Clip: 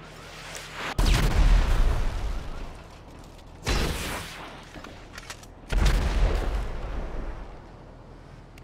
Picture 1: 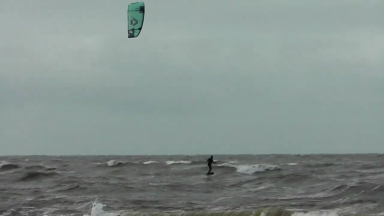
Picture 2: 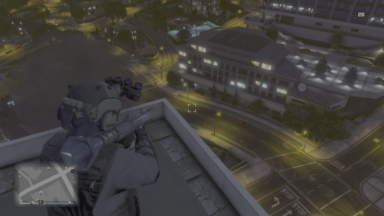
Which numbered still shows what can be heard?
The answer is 2